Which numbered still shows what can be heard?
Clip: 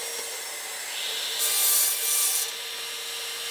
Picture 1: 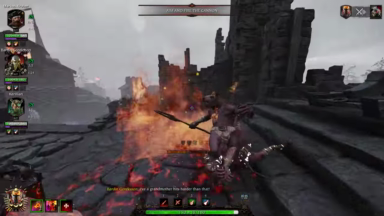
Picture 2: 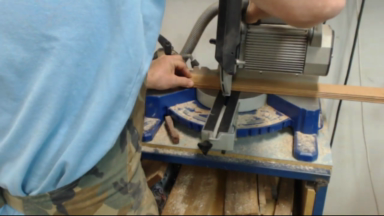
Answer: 2